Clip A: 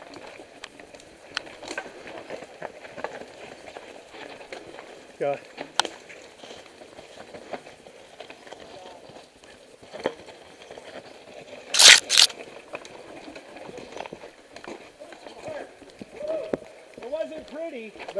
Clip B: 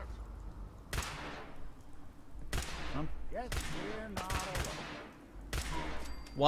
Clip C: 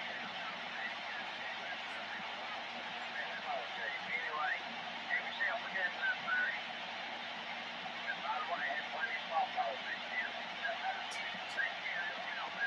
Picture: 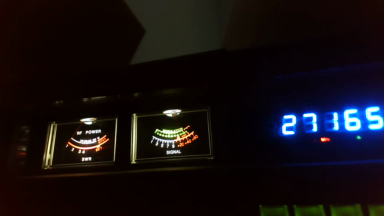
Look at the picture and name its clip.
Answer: C